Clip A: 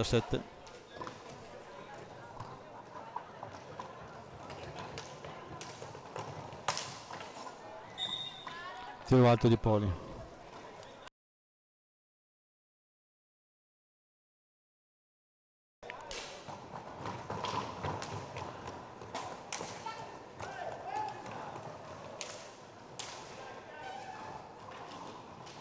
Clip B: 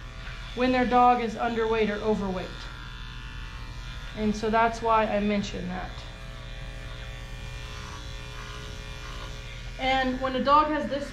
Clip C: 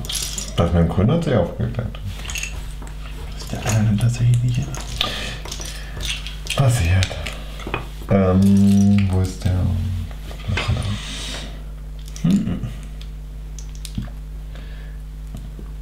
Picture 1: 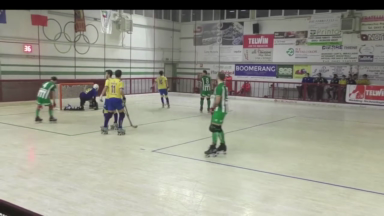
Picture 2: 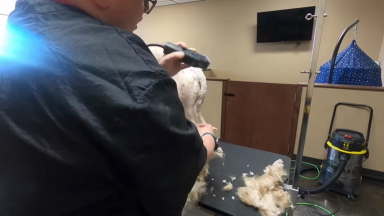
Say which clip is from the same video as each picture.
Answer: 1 A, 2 B